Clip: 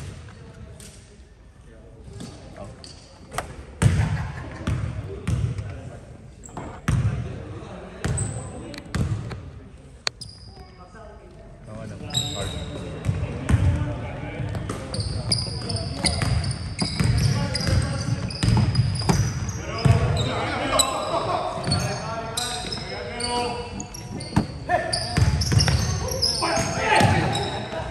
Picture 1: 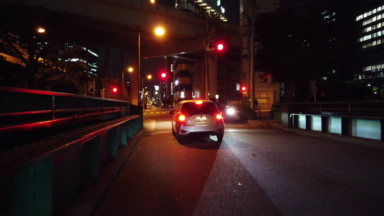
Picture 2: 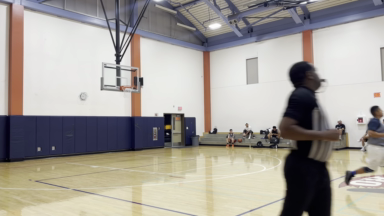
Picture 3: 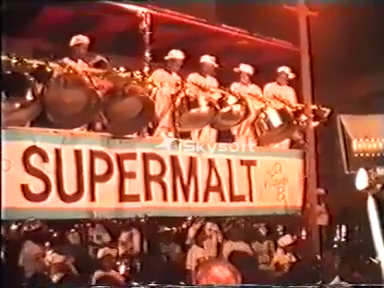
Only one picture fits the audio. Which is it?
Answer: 2